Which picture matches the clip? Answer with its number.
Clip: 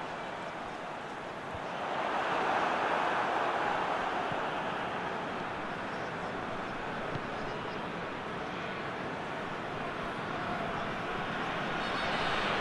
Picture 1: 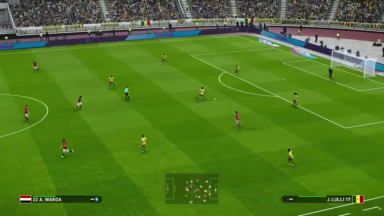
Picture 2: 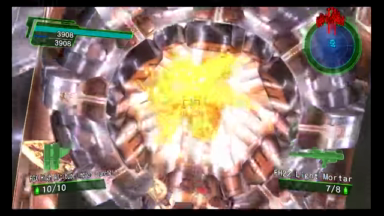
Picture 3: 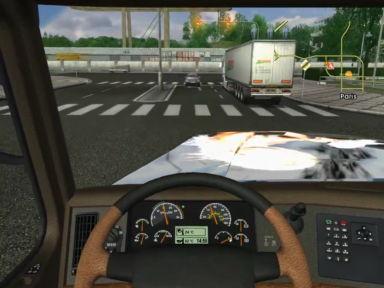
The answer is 1